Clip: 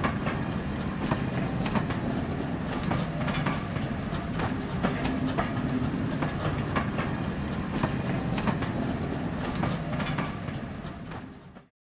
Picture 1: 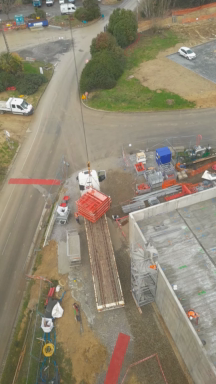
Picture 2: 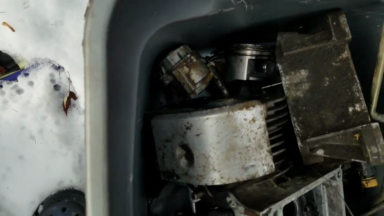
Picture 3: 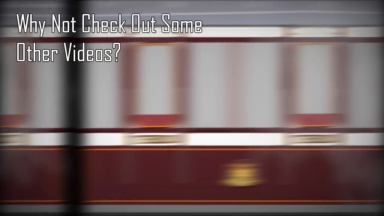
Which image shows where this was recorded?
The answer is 3